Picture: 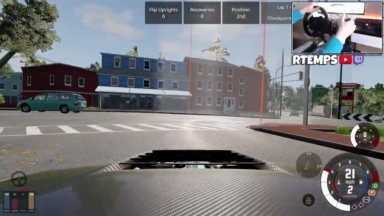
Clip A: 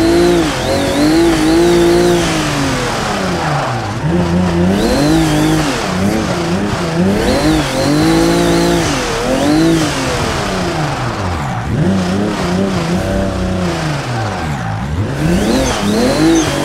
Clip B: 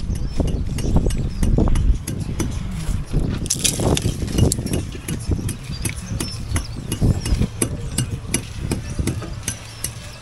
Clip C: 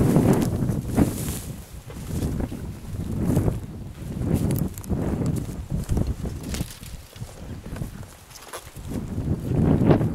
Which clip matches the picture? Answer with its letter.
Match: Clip A